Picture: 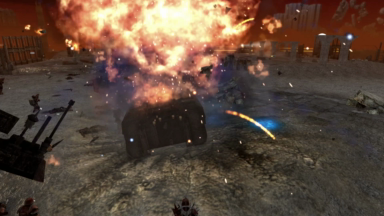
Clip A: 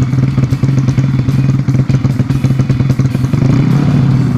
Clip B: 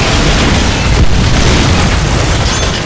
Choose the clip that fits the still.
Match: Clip B